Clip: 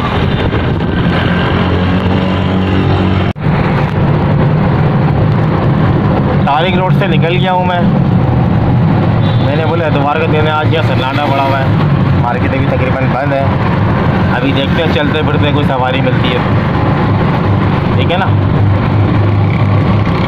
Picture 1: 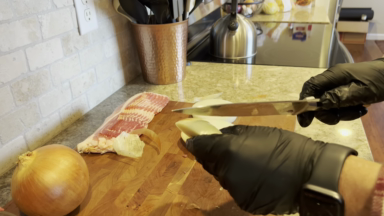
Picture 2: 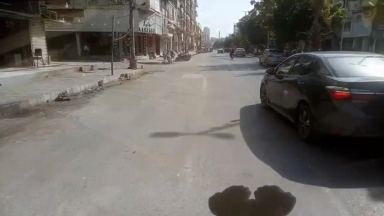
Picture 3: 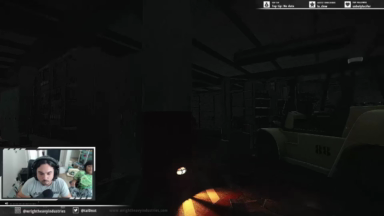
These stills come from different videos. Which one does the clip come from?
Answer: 2